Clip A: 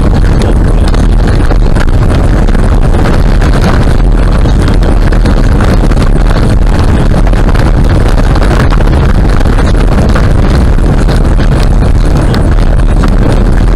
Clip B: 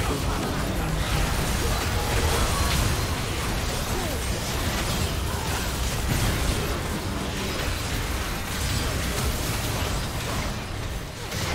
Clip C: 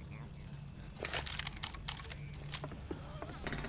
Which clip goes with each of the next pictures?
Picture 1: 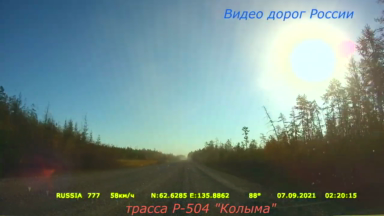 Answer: A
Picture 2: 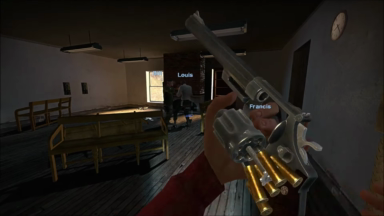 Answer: C